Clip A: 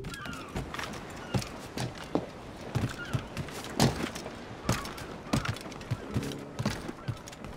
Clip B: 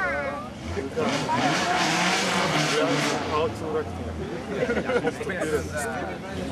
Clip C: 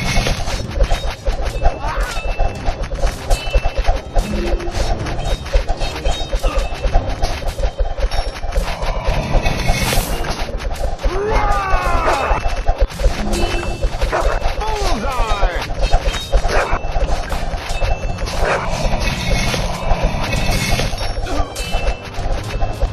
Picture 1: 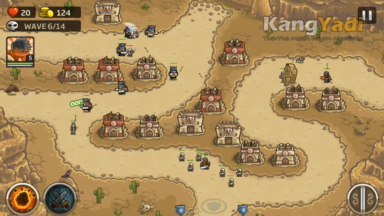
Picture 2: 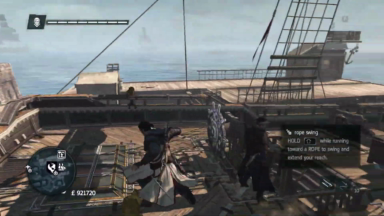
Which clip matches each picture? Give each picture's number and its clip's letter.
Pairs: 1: C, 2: A